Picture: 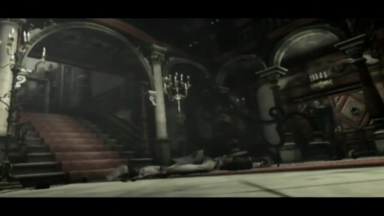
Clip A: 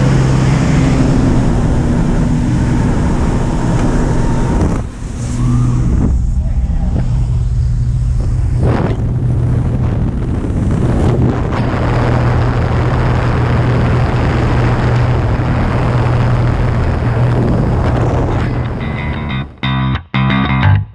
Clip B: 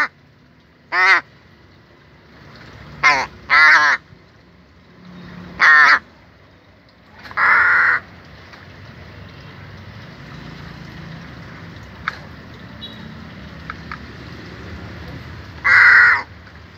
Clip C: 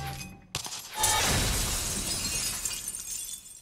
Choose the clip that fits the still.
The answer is C